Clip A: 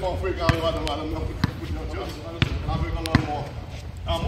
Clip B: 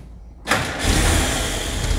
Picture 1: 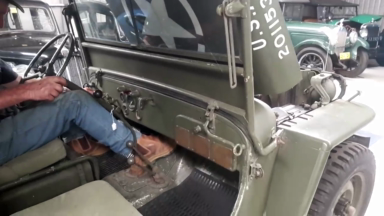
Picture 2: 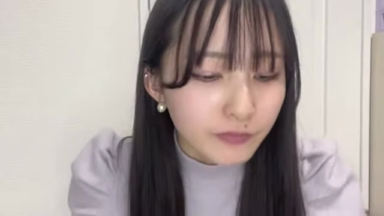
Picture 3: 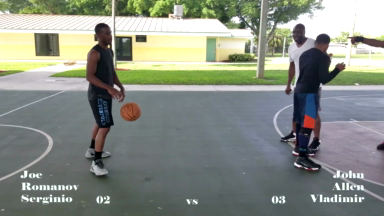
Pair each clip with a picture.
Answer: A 3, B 1